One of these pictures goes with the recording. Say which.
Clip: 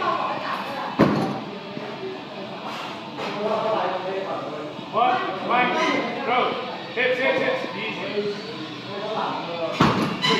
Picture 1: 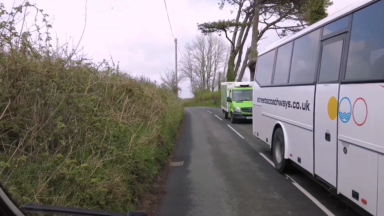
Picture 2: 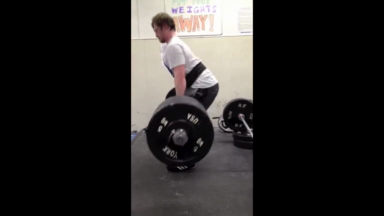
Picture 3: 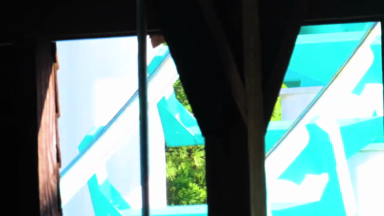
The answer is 2